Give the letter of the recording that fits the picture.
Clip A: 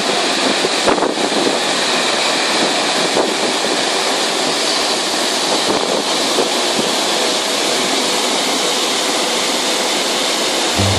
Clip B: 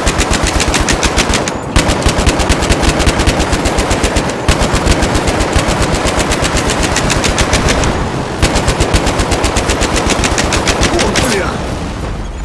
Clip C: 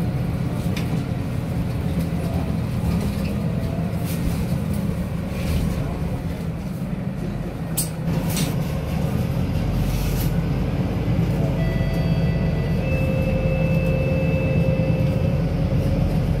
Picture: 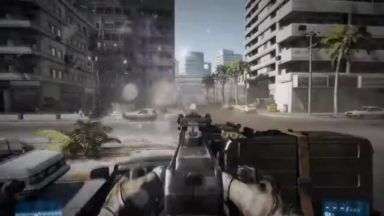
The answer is B